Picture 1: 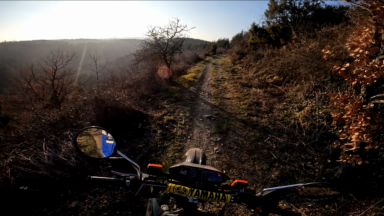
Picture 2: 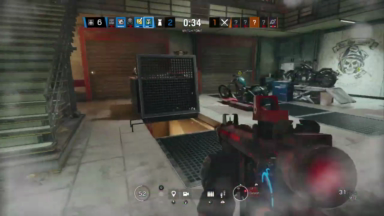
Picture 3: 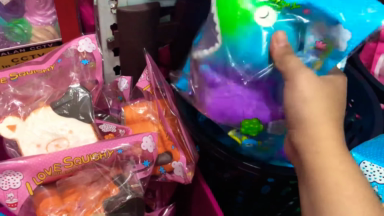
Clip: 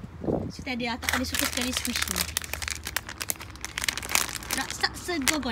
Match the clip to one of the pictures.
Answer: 3